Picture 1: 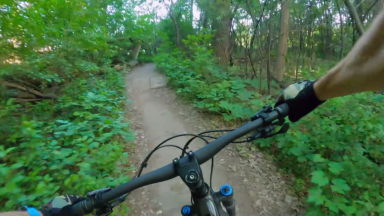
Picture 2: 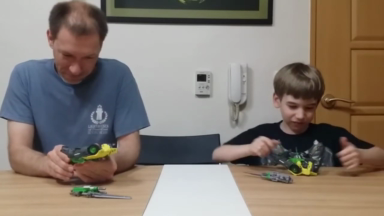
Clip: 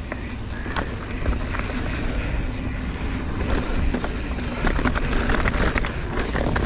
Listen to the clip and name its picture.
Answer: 1